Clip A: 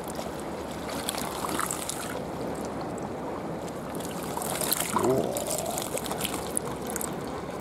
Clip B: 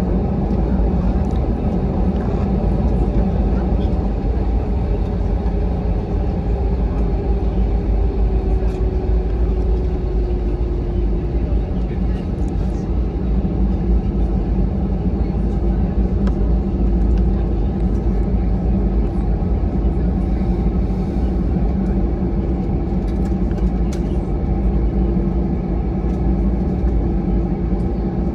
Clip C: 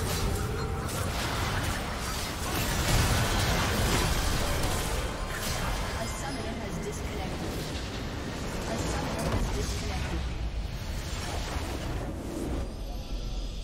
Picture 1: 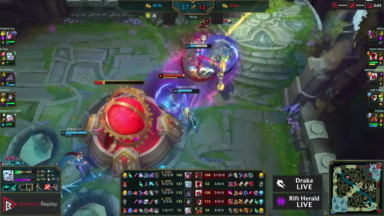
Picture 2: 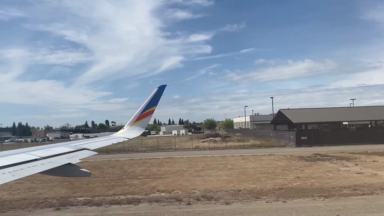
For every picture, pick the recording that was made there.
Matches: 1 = C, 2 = B